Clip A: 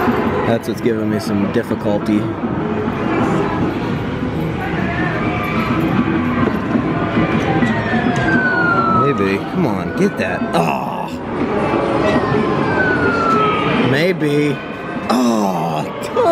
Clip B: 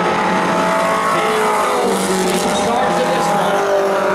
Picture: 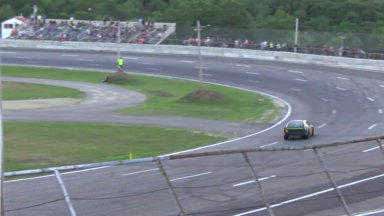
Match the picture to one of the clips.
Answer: B